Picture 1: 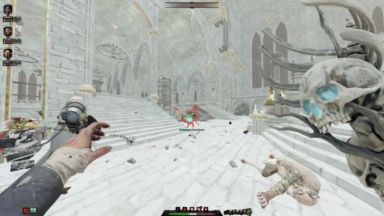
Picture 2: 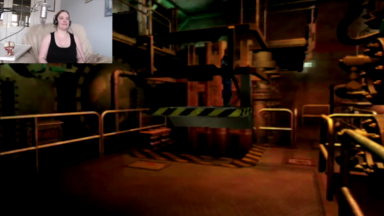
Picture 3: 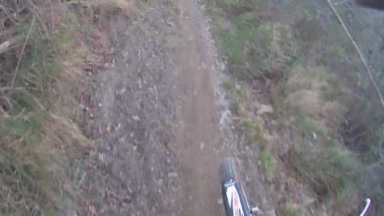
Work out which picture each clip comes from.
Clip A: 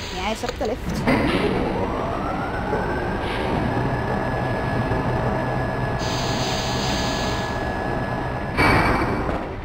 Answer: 2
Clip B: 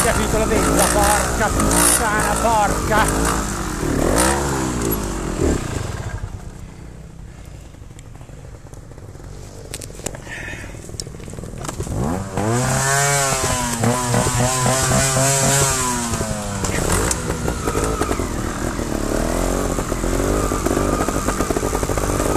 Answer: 3